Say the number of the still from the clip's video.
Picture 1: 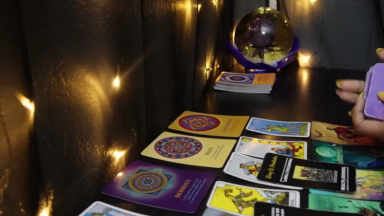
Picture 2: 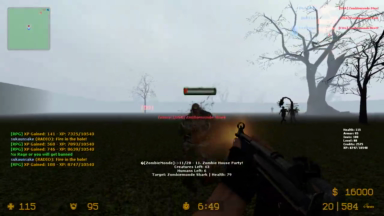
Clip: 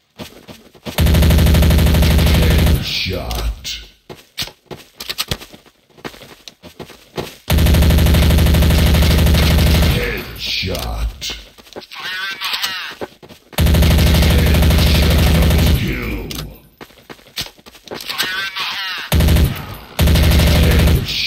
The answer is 2